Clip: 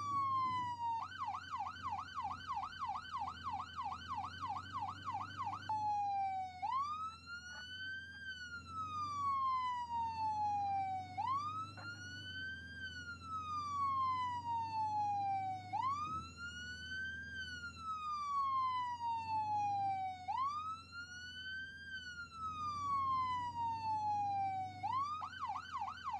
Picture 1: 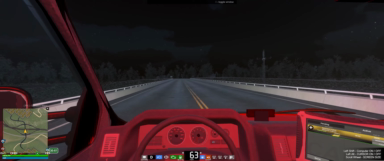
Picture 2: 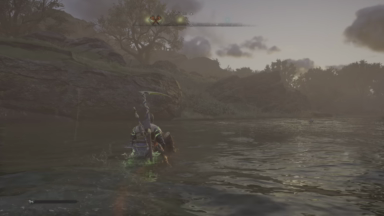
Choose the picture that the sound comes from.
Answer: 1